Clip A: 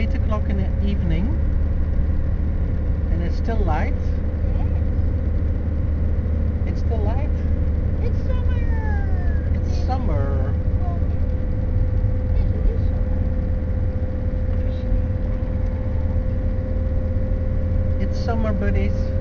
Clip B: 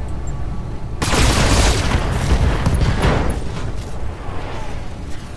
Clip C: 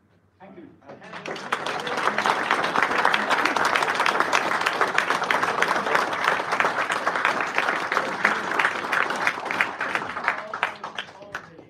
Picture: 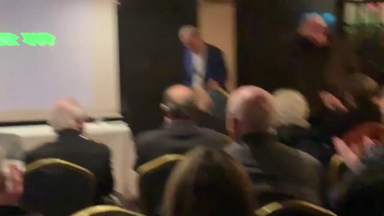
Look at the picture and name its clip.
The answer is C